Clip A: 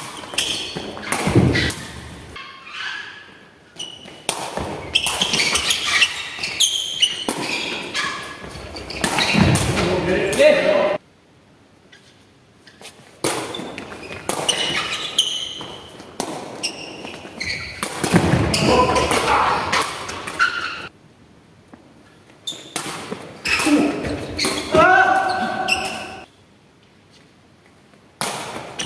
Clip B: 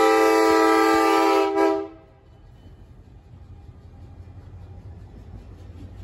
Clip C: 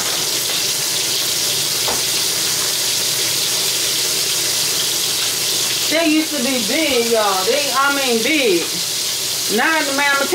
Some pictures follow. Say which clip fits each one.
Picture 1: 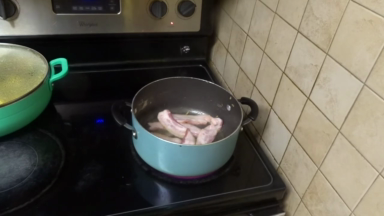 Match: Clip C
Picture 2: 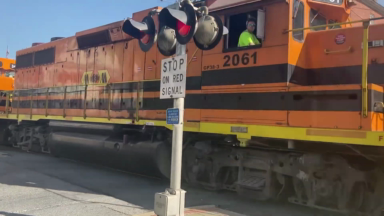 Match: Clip B